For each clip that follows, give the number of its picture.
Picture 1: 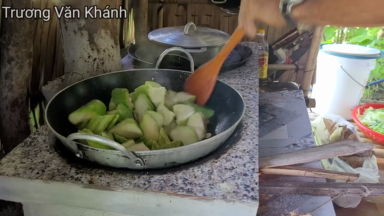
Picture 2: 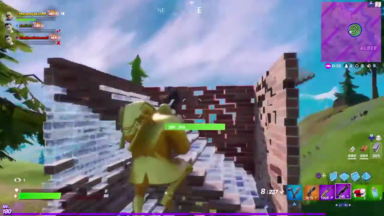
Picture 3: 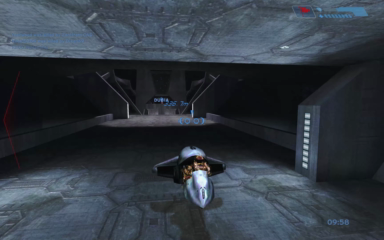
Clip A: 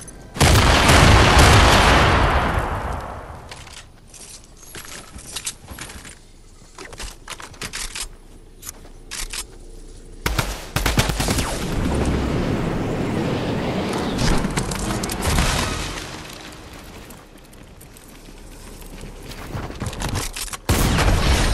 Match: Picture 2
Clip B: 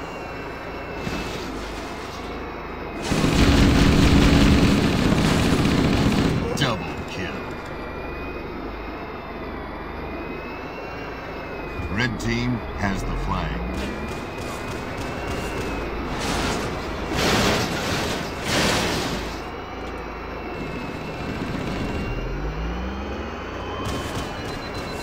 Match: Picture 3